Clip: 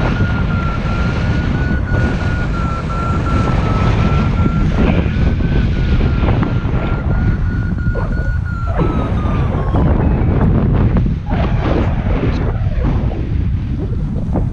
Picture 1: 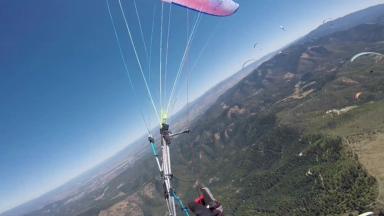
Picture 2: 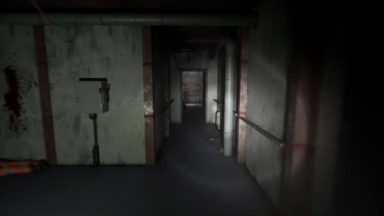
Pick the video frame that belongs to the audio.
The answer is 1